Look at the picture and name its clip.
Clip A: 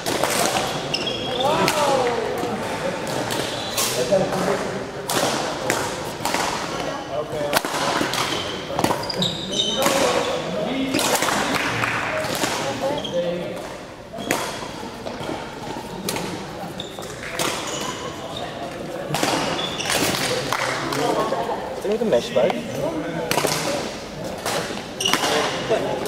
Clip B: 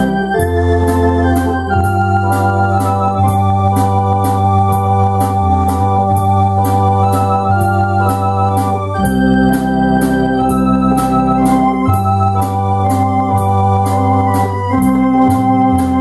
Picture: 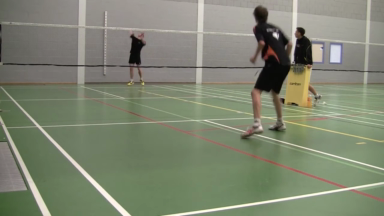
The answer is A